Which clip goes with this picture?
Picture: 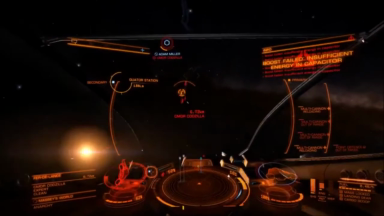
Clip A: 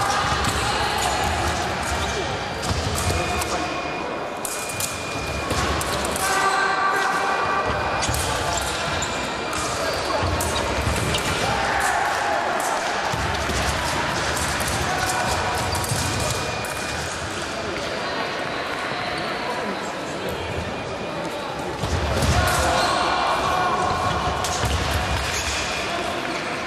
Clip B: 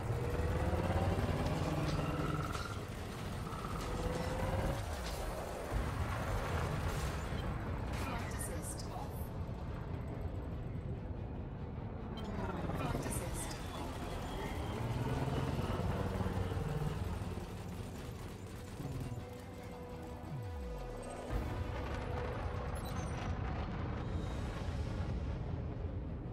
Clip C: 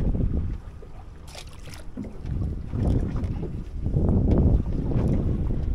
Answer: B